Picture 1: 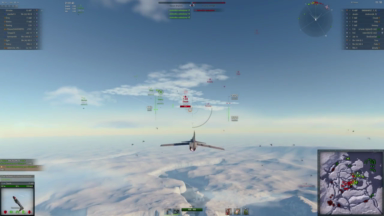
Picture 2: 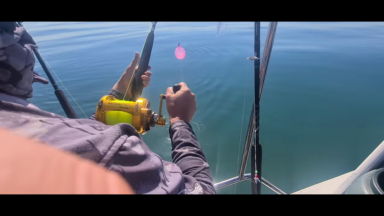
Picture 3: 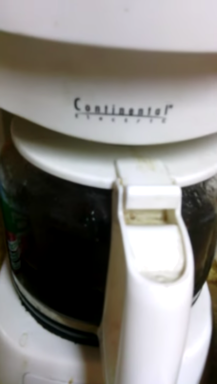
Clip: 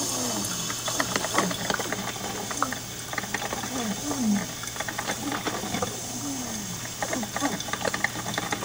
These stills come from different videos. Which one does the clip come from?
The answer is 3